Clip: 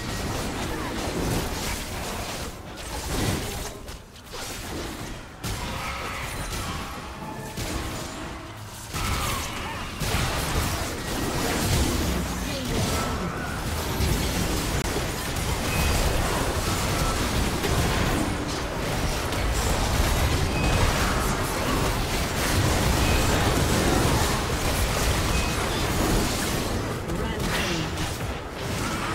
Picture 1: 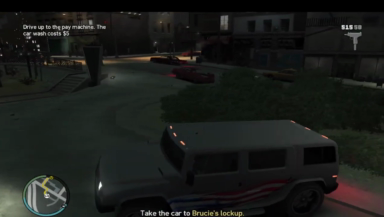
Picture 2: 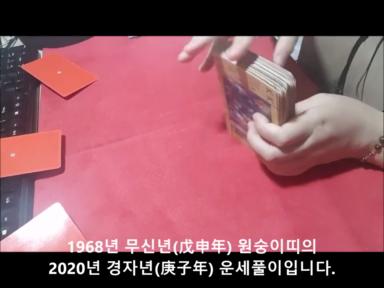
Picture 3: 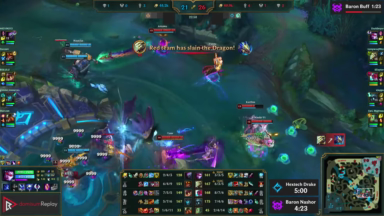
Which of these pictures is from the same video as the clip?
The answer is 3